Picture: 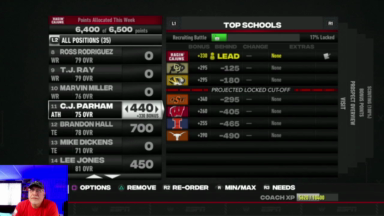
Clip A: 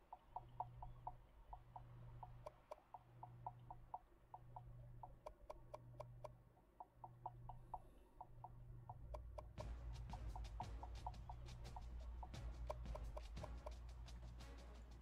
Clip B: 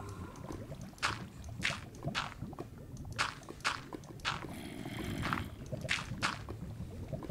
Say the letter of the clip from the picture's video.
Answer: A